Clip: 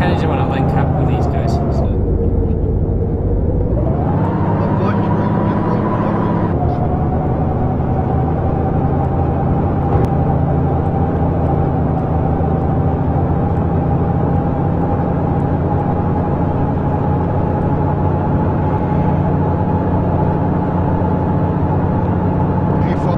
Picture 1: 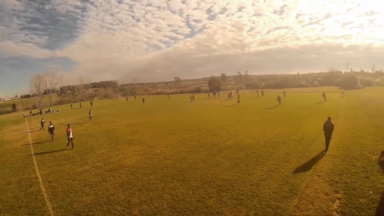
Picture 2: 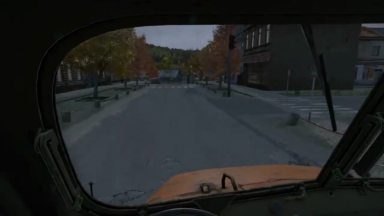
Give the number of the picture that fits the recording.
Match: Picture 2